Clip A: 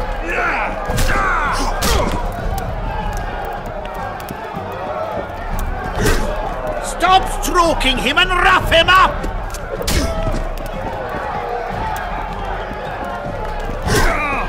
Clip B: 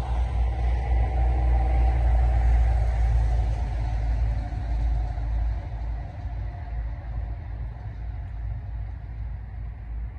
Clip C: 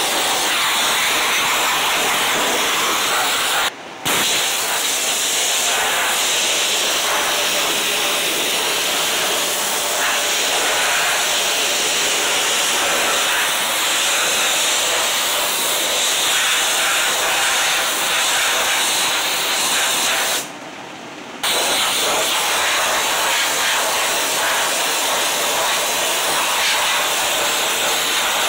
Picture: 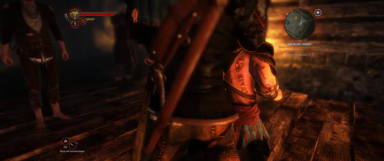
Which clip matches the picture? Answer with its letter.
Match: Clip A